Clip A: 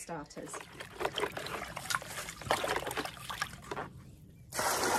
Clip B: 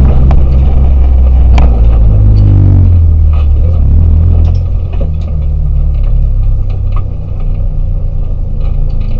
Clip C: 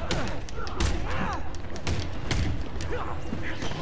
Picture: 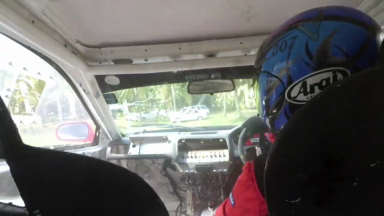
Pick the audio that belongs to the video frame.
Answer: B